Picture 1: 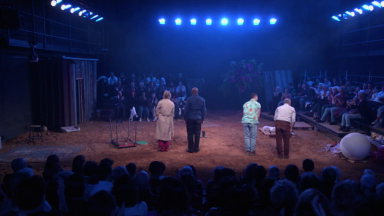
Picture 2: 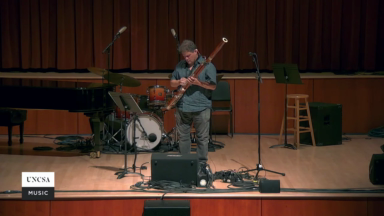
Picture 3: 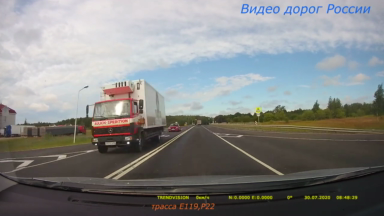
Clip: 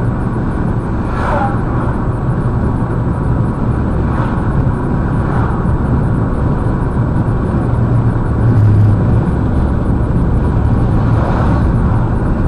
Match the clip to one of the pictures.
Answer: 3